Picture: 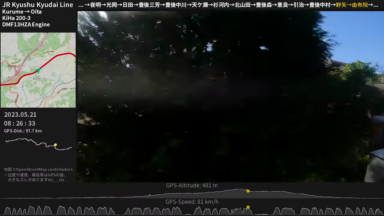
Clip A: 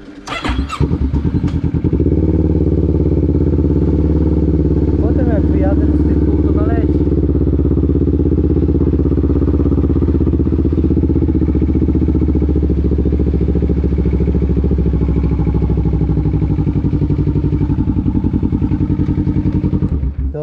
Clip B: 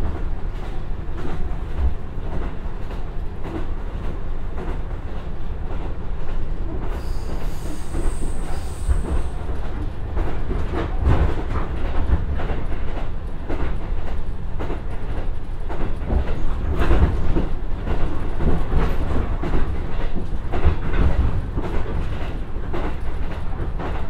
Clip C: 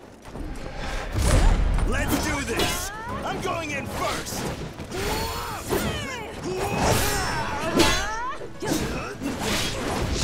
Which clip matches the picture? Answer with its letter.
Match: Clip B